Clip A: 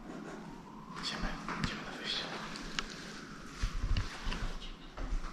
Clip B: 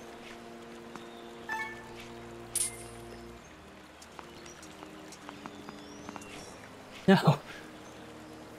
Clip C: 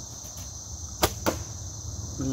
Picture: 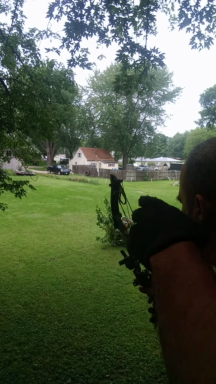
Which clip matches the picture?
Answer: C